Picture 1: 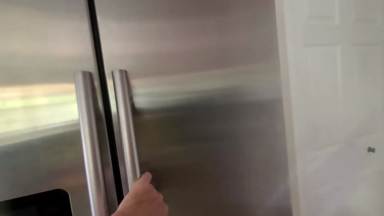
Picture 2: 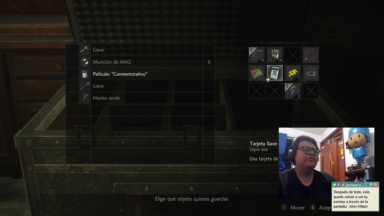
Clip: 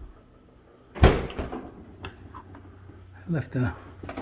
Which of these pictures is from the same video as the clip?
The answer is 1